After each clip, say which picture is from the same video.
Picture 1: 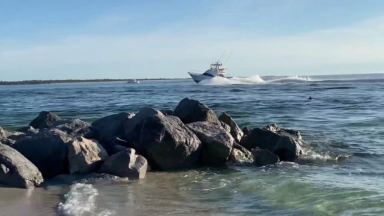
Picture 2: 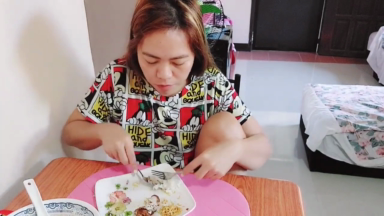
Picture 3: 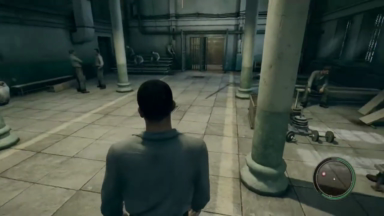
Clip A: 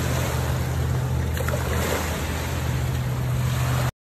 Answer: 1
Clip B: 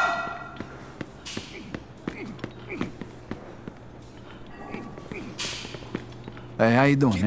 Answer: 3